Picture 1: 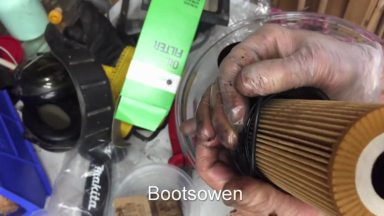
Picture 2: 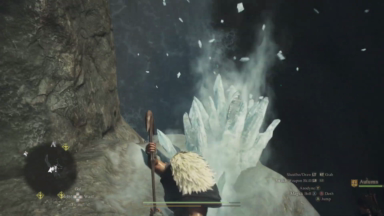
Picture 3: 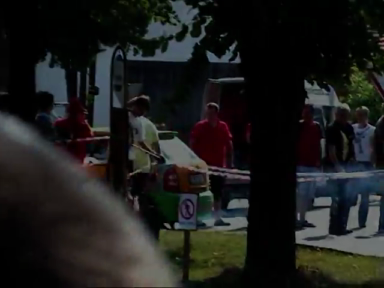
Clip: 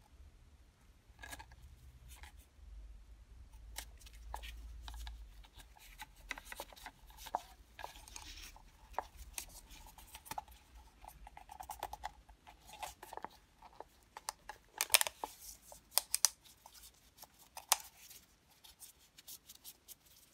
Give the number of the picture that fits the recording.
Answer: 1